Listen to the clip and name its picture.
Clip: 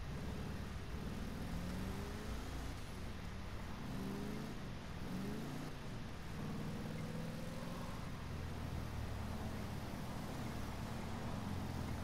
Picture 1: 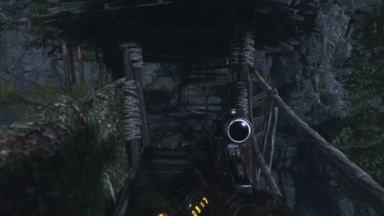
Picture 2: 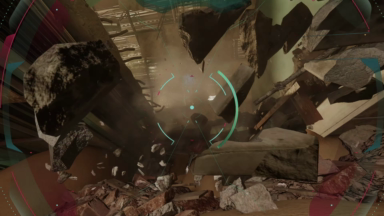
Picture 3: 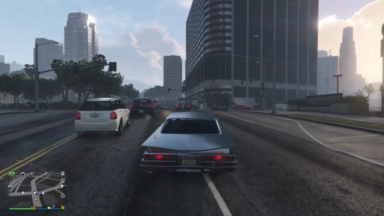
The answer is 3